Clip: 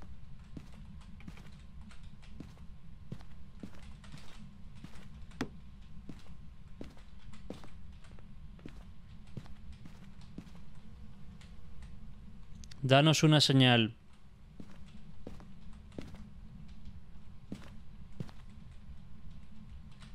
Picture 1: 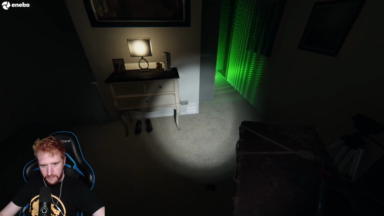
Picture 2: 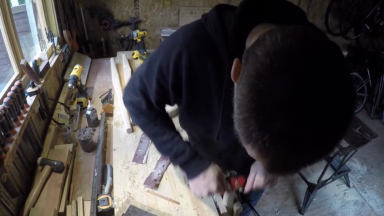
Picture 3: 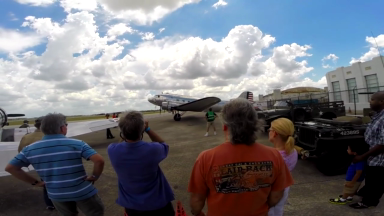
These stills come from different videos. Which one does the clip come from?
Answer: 1